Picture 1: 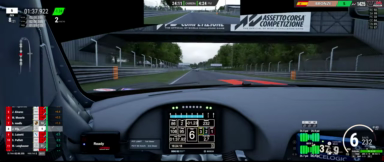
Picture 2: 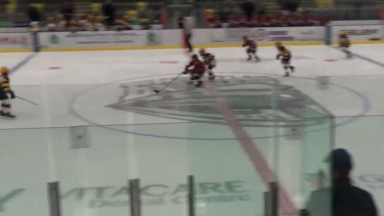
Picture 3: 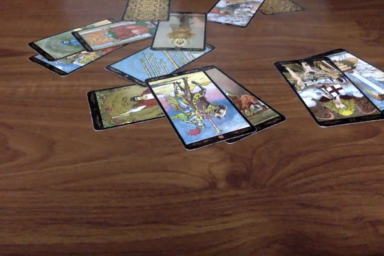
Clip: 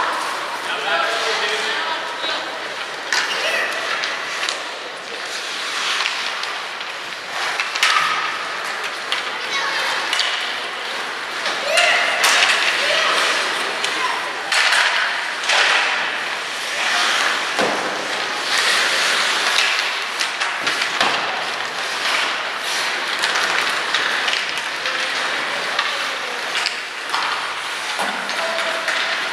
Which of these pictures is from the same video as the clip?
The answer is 2